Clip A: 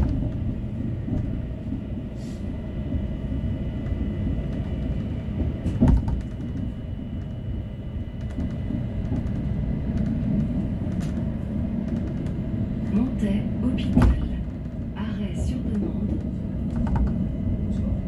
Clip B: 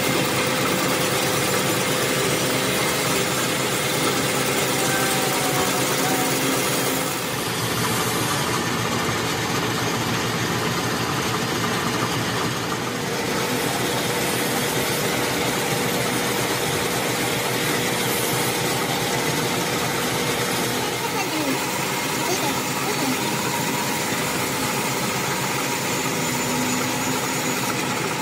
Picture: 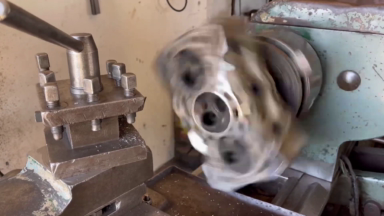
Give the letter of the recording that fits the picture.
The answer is B